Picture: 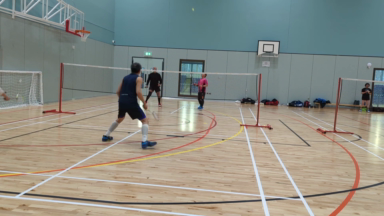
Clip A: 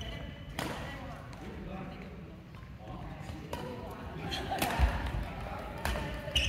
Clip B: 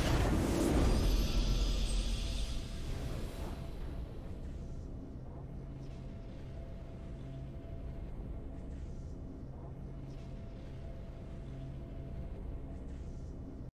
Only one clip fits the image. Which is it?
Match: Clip A